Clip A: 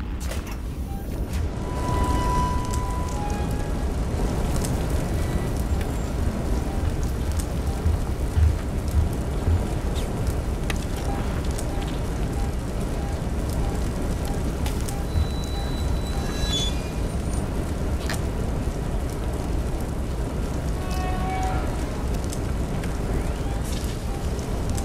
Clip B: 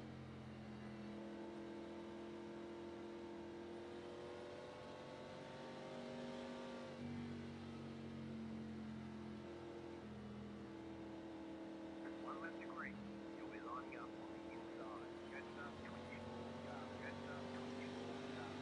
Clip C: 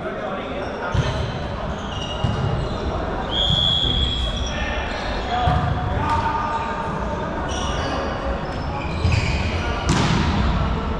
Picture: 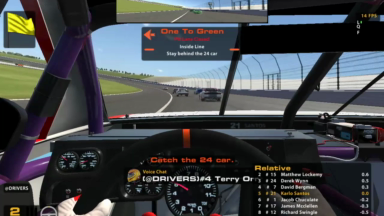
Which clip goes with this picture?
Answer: B